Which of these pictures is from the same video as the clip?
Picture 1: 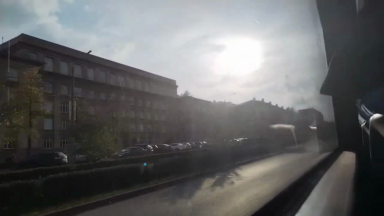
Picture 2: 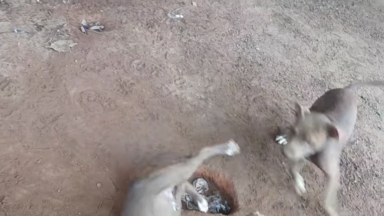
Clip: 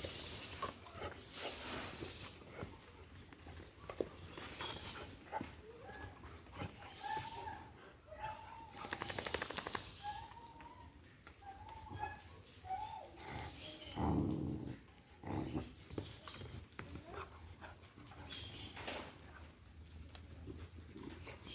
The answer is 2